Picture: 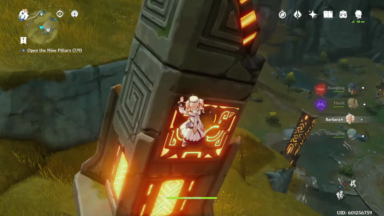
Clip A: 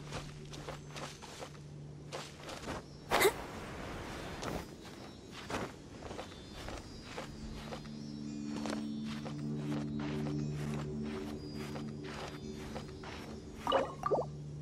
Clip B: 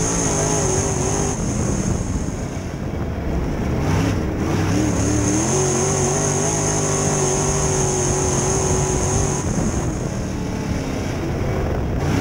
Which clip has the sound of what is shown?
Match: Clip A